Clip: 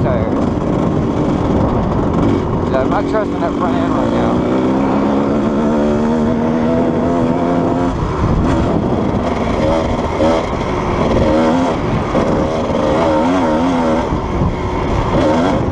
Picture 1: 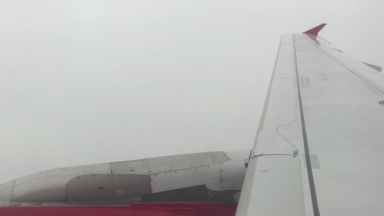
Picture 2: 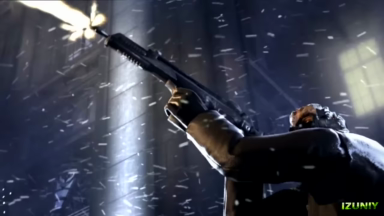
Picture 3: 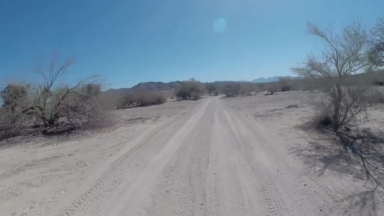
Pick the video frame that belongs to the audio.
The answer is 3